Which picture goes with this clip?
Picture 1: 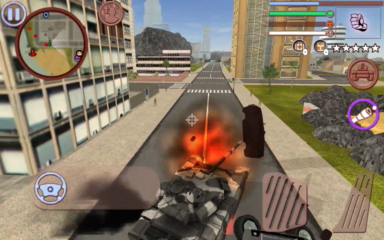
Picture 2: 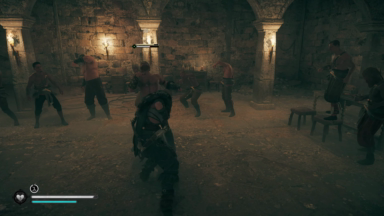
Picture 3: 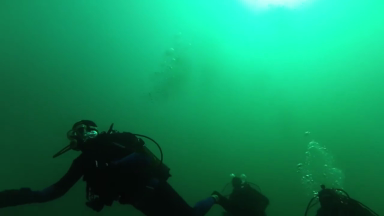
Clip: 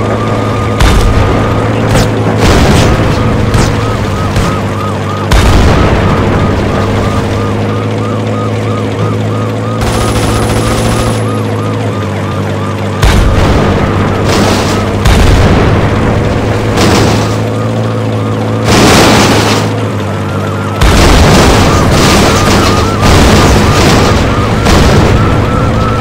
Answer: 1